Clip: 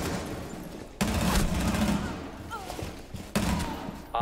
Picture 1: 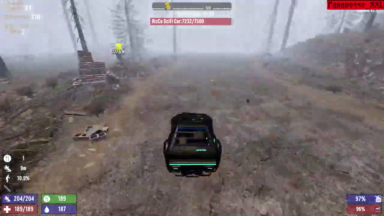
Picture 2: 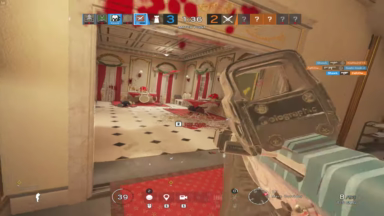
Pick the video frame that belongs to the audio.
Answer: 2